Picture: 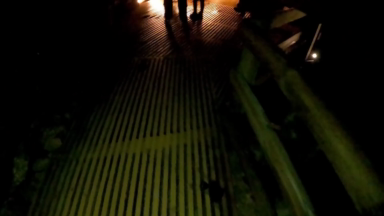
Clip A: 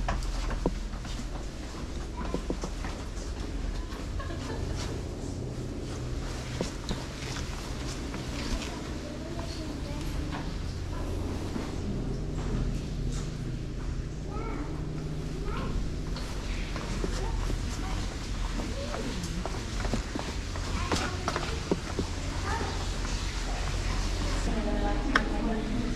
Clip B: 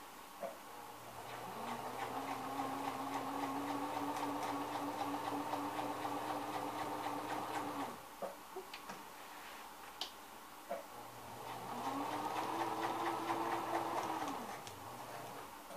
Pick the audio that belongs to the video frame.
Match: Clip A